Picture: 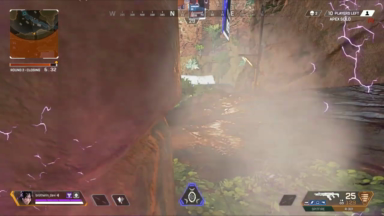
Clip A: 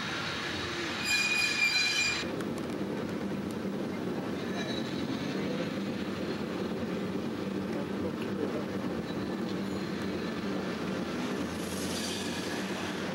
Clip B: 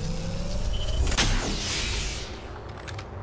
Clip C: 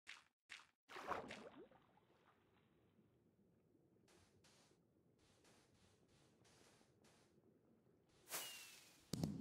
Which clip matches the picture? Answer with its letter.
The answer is B